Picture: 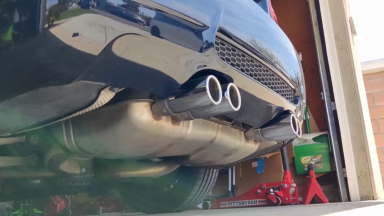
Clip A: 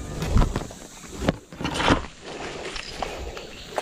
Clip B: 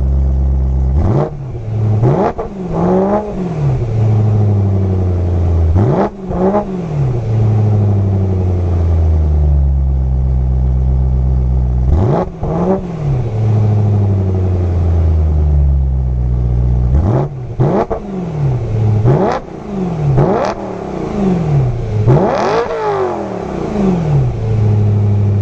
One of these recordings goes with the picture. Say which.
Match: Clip B